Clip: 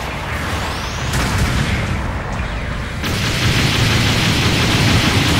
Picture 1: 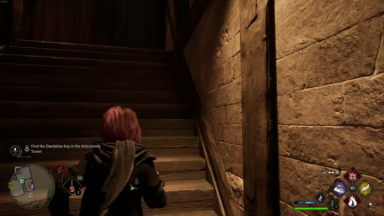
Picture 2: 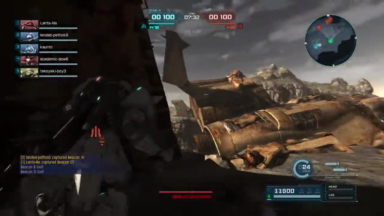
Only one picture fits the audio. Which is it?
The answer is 2